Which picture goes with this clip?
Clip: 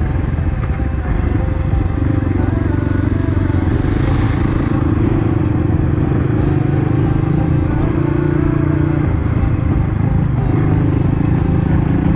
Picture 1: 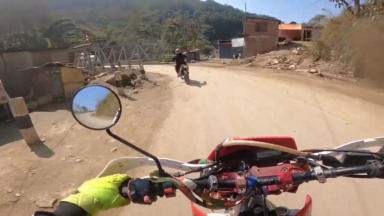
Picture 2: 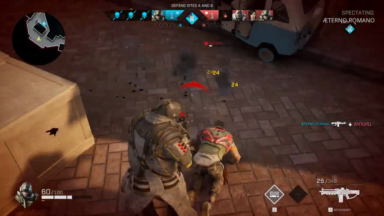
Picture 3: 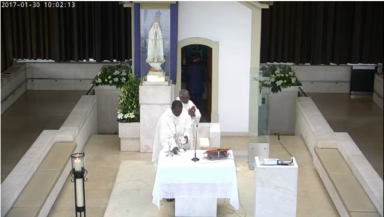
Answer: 1